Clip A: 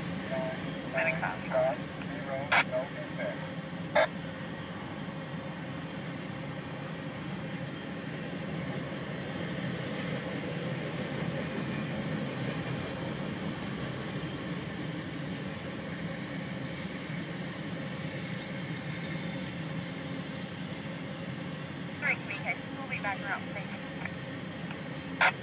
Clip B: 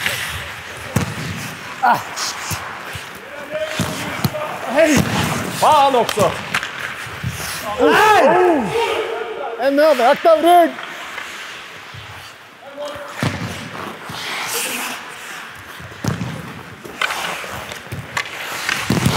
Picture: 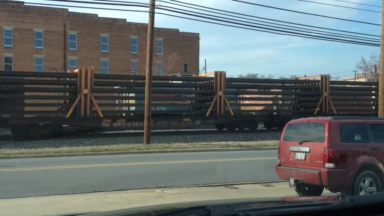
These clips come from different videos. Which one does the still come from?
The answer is A